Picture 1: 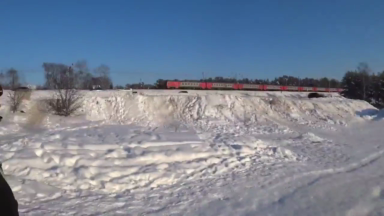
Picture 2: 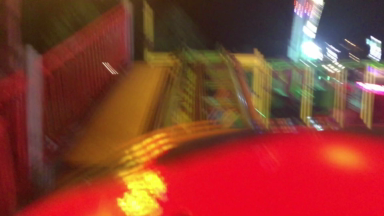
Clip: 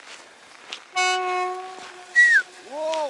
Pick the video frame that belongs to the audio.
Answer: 1